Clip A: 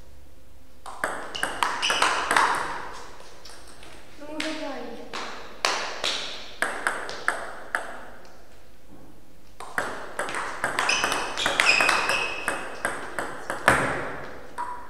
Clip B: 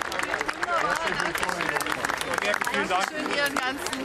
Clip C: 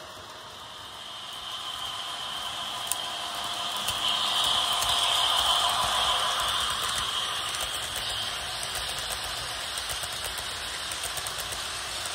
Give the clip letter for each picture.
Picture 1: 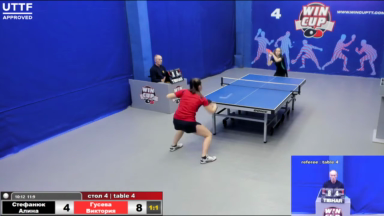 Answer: A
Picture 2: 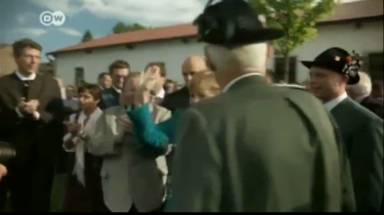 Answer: B